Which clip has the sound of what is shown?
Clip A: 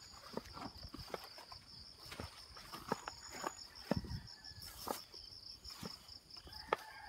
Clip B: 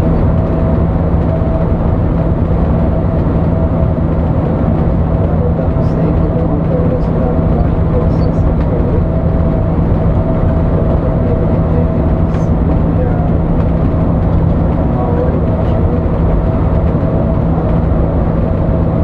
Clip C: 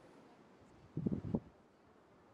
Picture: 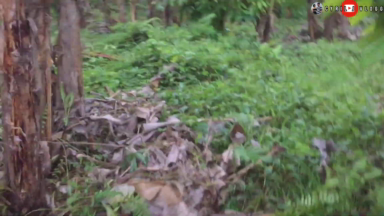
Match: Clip A